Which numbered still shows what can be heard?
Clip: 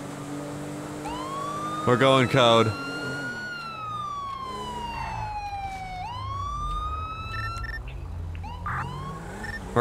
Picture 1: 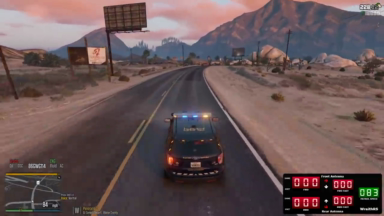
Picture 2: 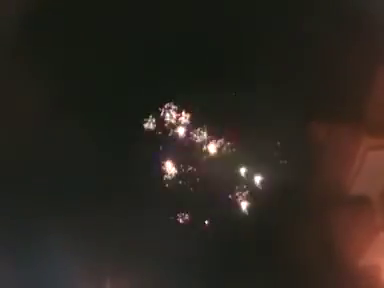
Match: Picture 1